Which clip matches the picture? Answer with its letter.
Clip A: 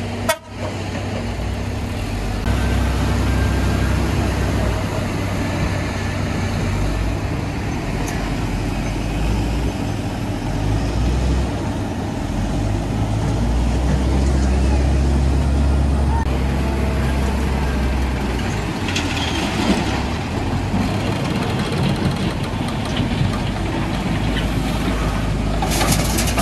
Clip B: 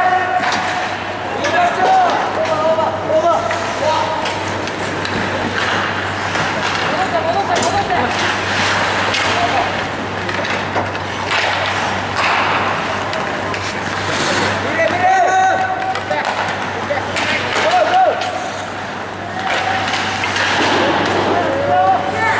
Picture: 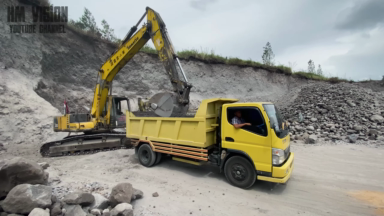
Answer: A